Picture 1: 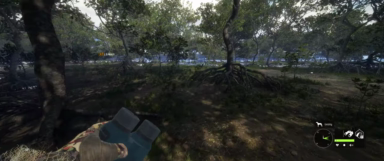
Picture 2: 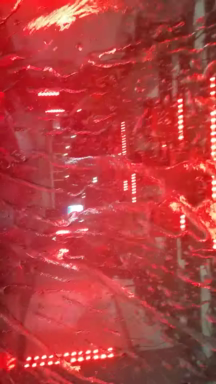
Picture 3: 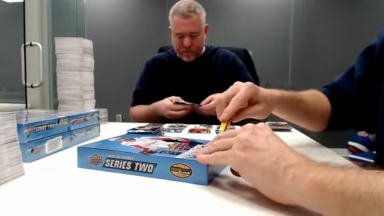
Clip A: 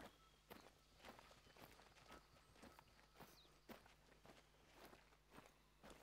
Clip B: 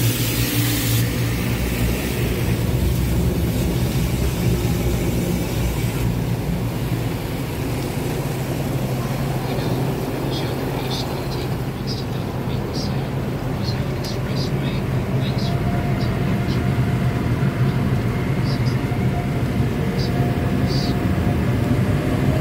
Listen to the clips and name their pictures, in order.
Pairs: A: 1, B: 2